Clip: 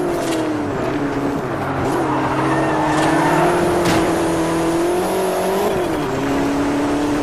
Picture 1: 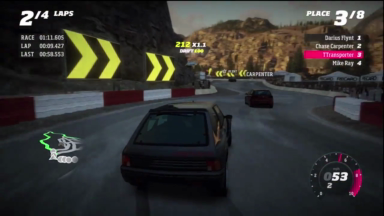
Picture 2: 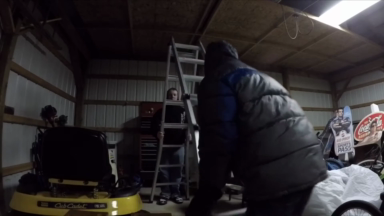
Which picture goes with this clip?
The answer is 1